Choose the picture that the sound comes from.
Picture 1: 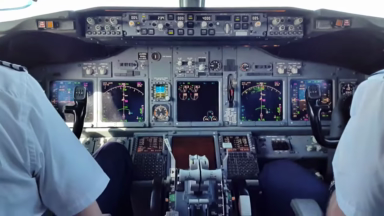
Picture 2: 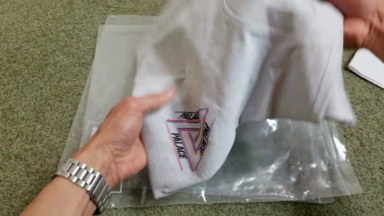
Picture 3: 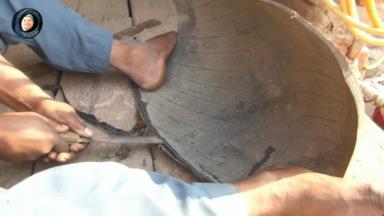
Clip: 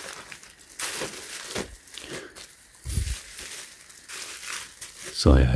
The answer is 2